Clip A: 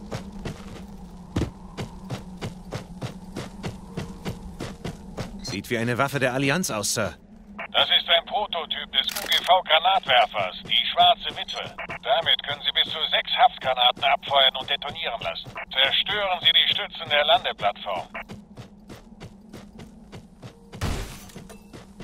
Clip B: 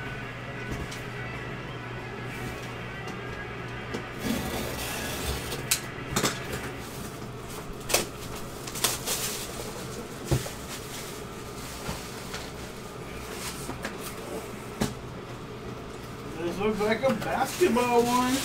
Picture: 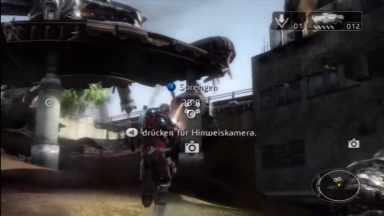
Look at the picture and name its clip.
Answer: A